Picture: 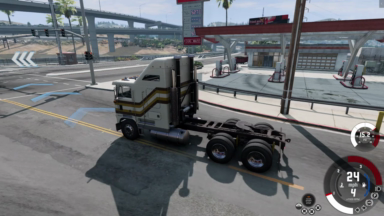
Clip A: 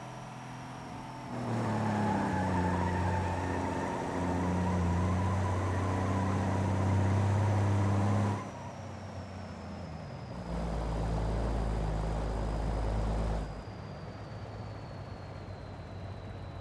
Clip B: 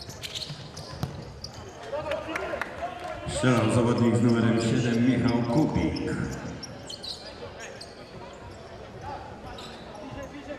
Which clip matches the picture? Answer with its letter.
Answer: A